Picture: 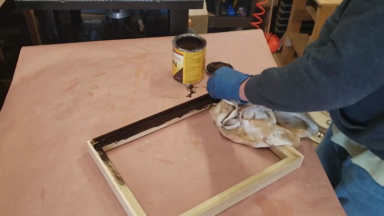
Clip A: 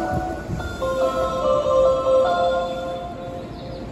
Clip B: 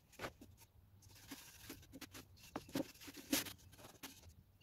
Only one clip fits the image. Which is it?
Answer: B